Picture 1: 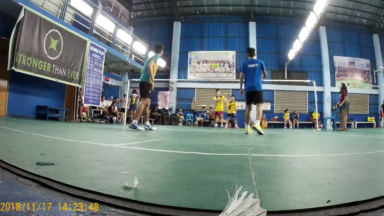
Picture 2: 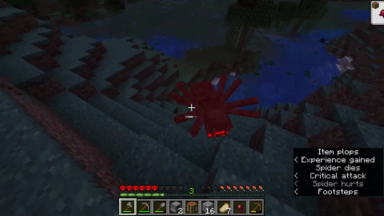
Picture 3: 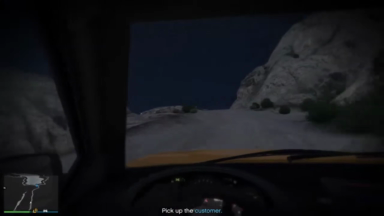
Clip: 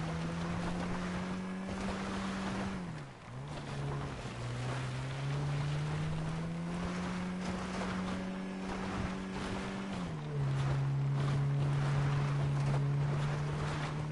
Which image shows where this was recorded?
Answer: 3